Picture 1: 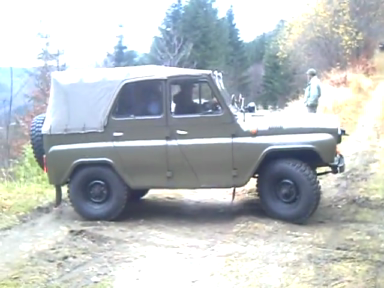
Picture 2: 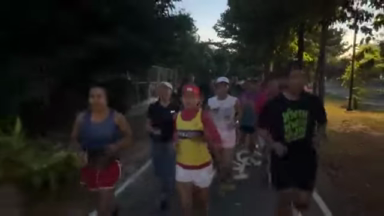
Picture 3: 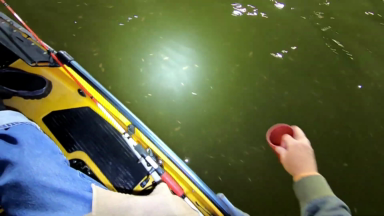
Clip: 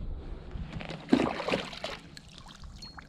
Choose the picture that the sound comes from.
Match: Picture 3